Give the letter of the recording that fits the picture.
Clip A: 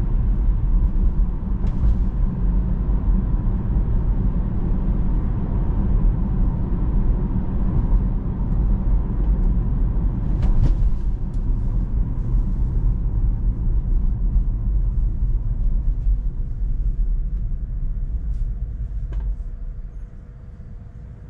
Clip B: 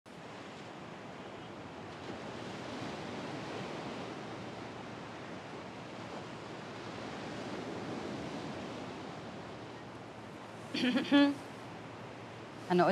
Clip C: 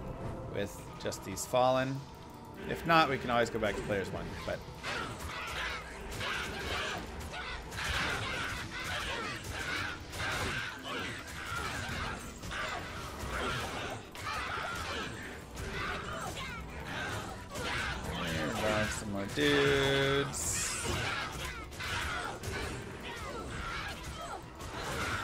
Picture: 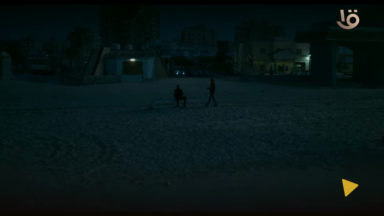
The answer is B